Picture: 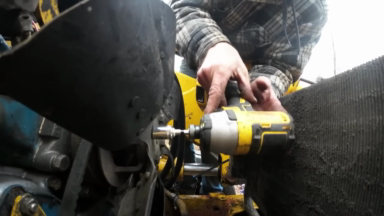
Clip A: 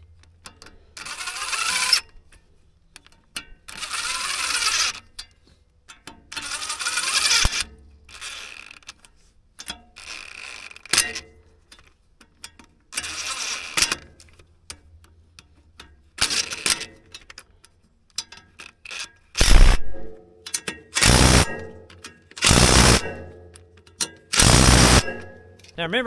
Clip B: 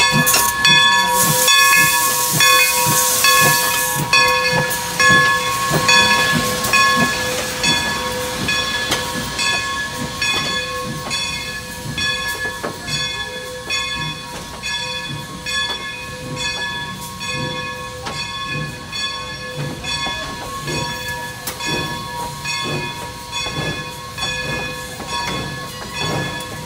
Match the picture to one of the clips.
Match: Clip A